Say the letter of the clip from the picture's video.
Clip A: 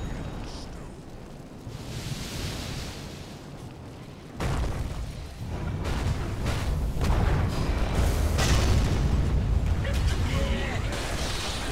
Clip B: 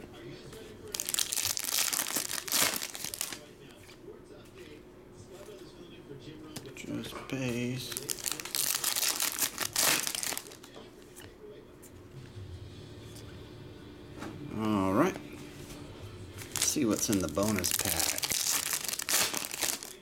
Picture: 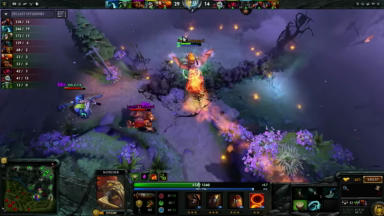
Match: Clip A